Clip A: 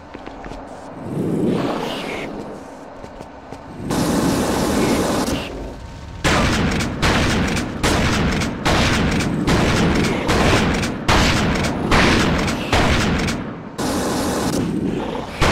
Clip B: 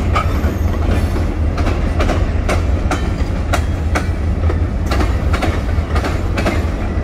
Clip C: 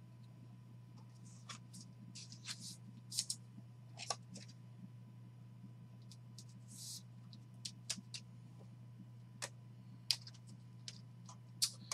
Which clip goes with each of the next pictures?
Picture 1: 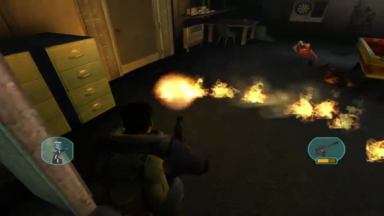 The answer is A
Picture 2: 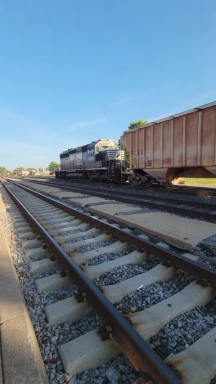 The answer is B